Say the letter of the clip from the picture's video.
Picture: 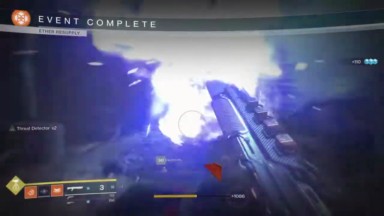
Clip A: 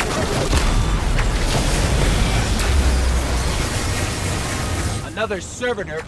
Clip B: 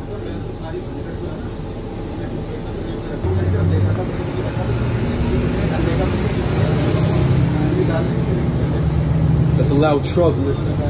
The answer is A